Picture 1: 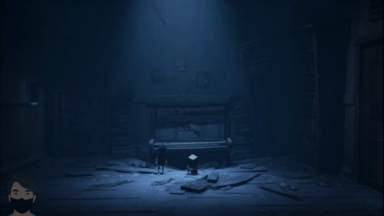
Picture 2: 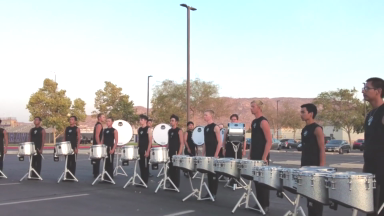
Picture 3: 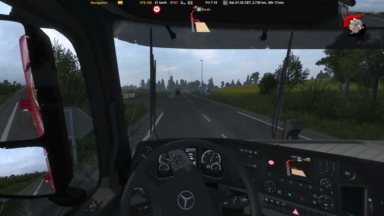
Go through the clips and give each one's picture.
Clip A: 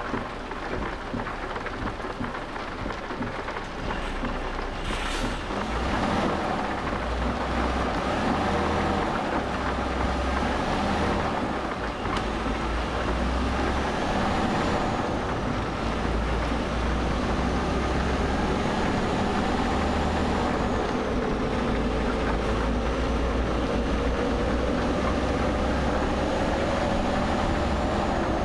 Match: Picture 3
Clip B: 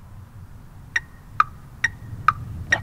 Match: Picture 2